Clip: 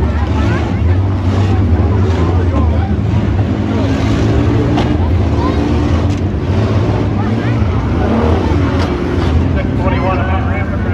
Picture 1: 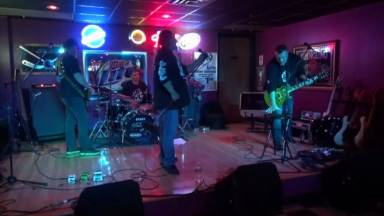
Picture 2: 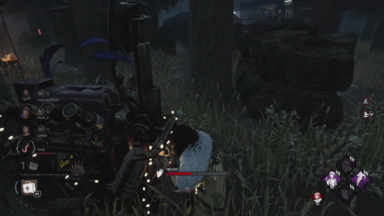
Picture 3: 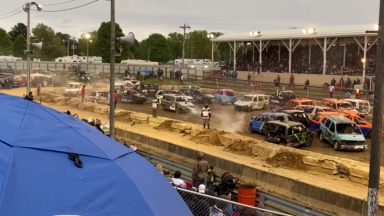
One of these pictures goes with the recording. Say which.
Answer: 3